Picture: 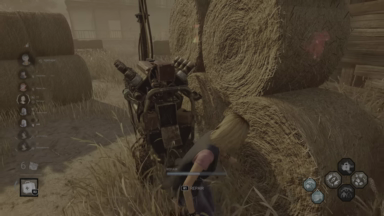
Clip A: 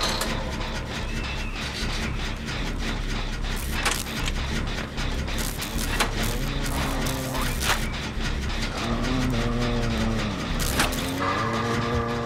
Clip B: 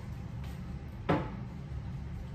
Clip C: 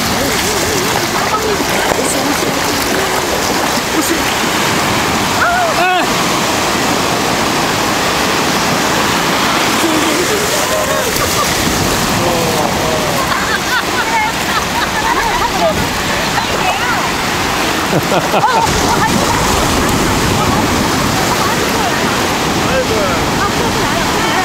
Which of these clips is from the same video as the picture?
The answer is A